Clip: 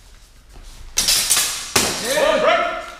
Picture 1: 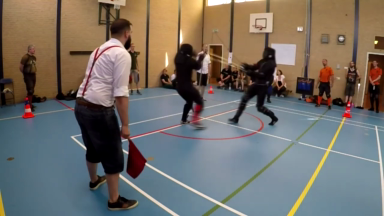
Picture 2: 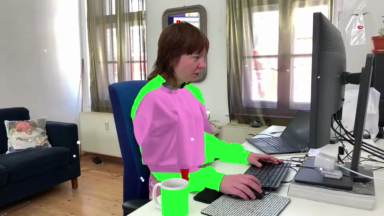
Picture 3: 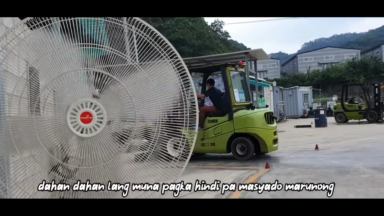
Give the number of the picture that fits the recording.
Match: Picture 1